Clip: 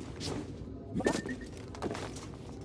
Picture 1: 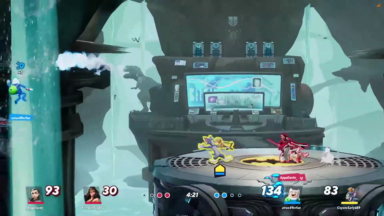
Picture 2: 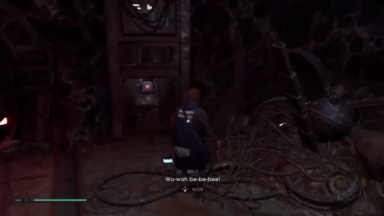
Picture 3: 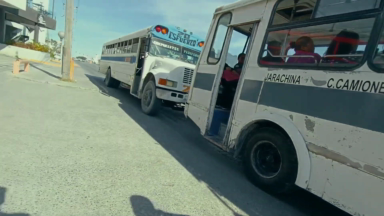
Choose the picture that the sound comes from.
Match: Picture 2